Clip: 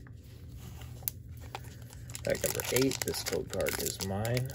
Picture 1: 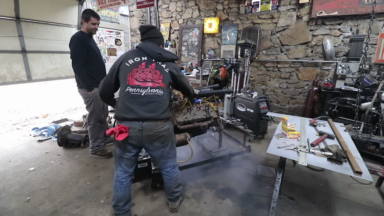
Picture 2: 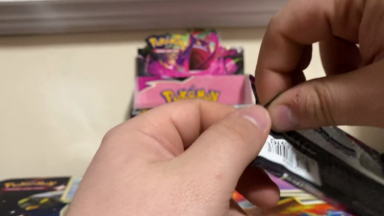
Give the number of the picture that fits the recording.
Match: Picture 2